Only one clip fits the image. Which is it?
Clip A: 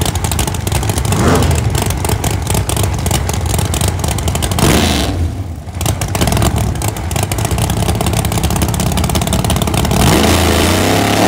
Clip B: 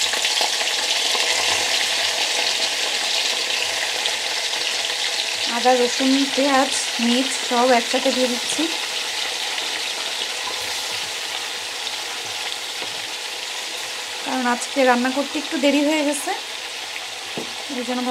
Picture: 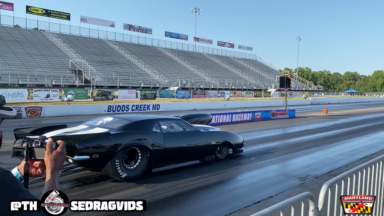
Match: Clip A